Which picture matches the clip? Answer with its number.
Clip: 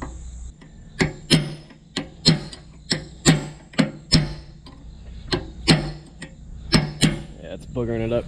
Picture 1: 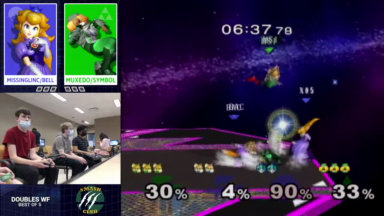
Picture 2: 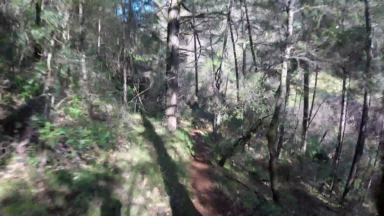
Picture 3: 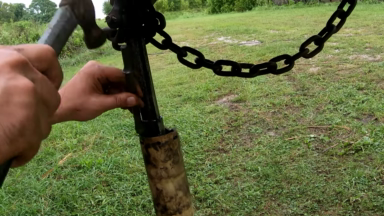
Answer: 3